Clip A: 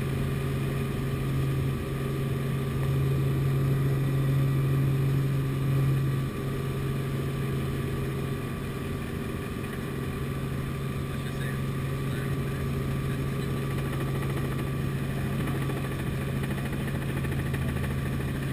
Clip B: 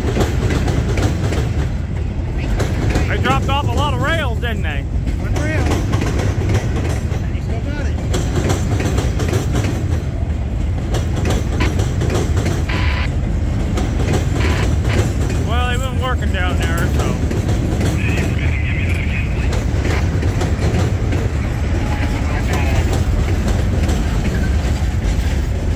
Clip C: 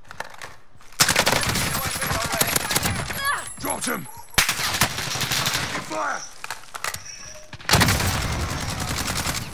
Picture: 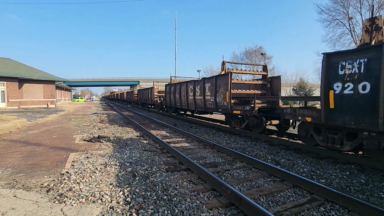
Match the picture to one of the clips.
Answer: B